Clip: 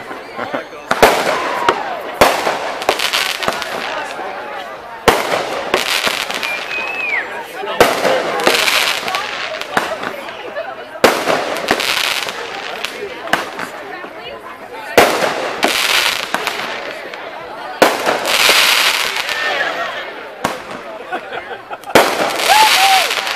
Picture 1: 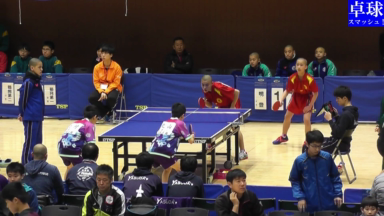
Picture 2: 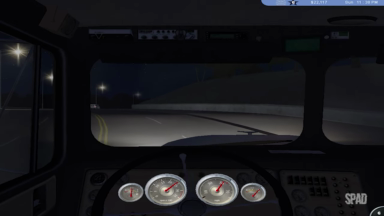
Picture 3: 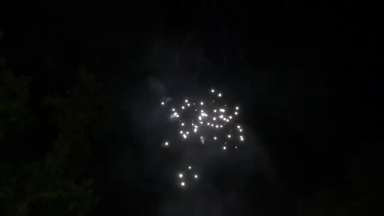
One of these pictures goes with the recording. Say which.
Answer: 3